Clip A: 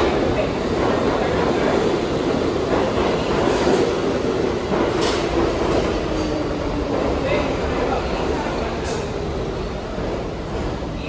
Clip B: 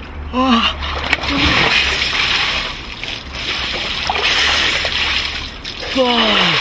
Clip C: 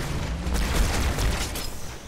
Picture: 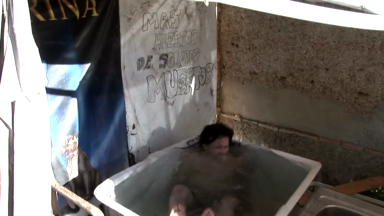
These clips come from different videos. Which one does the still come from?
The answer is B